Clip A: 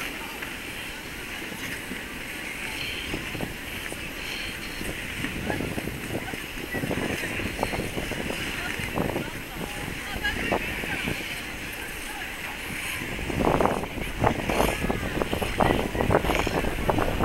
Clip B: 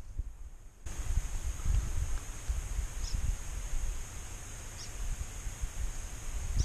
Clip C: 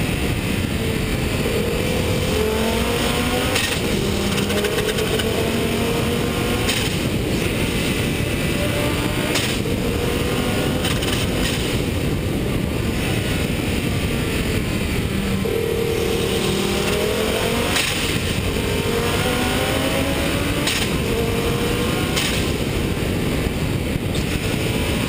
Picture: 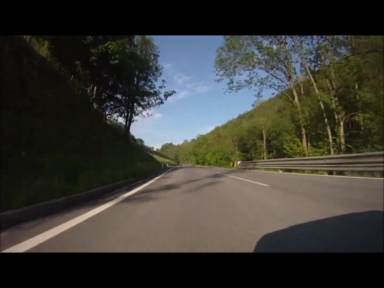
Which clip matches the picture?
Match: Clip C